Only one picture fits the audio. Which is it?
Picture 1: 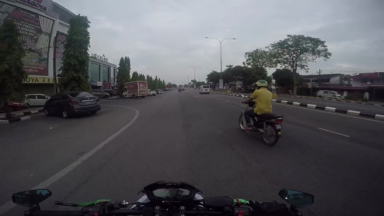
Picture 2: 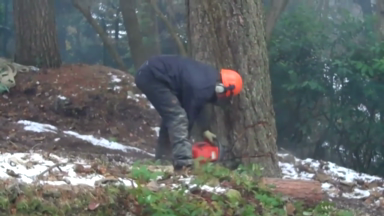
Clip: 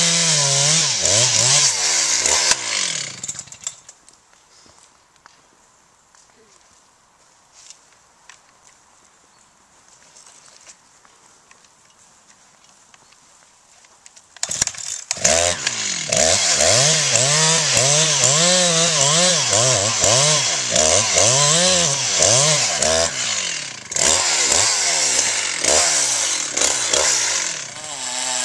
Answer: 2